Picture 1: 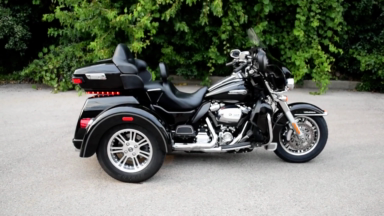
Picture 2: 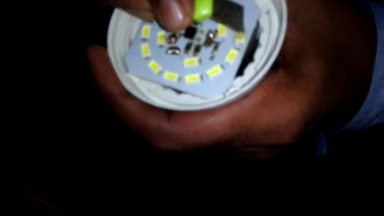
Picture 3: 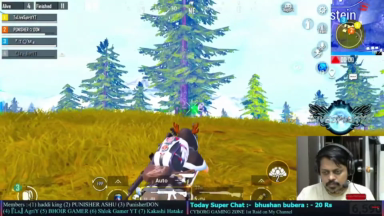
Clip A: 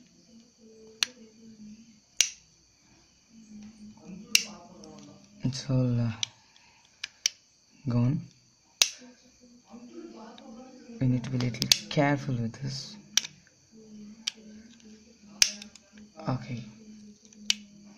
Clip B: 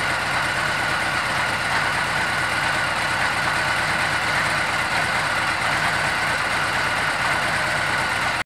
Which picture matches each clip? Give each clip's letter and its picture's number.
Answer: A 2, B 1